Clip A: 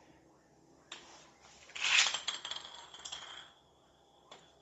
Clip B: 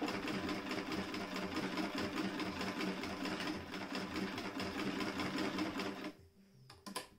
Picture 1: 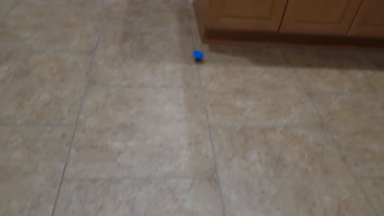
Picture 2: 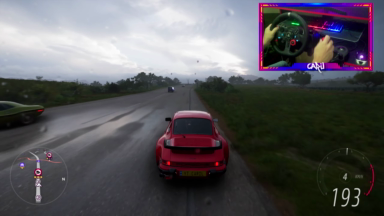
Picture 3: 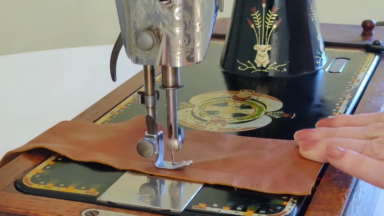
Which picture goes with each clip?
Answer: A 1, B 3